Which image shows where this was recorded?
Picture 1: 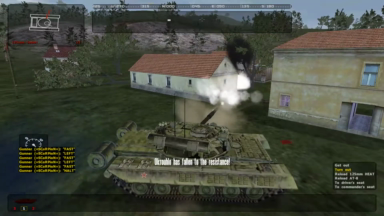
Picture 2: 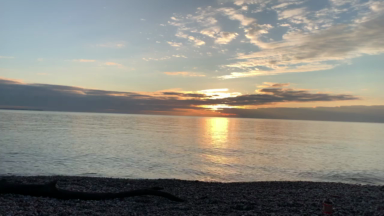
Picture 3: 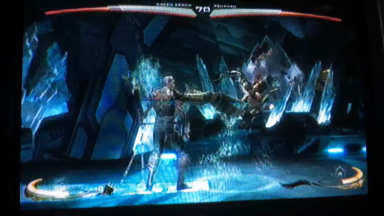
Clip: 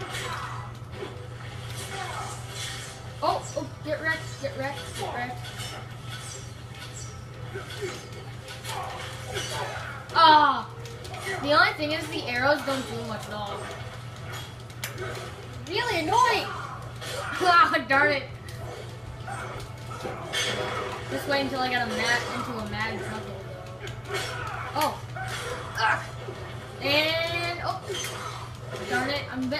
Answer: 3